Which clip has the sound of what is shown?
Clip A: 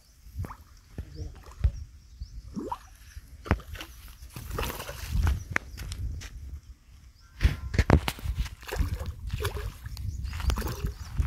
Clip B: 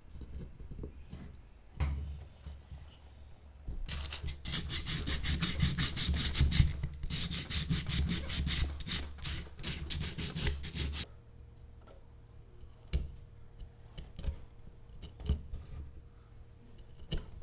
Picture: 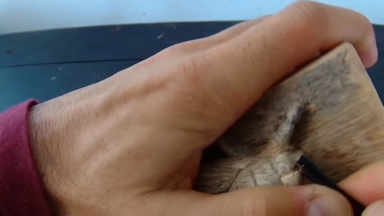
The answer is B